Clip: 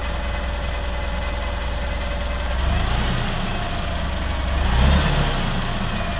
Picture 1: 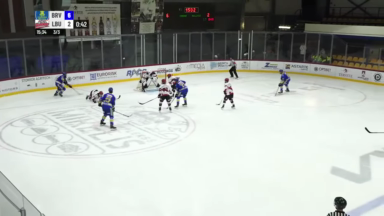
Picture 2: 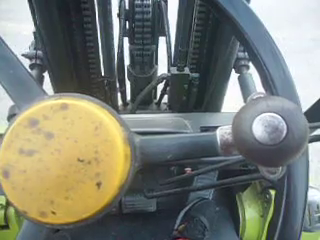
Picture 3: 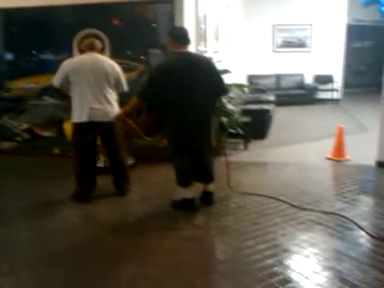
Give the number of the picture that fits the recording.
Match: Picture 2